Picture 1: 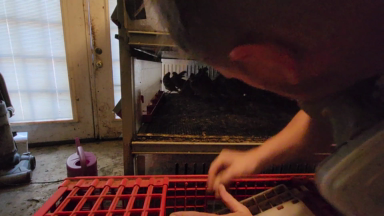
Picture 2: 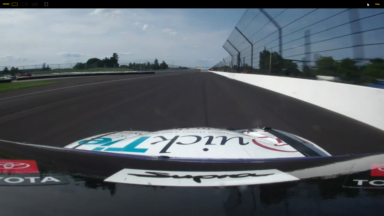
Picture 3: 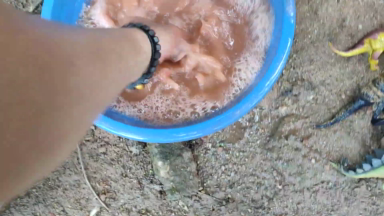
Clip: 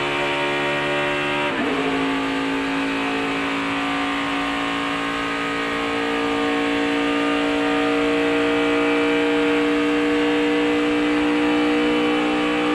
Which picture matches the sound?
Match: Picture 2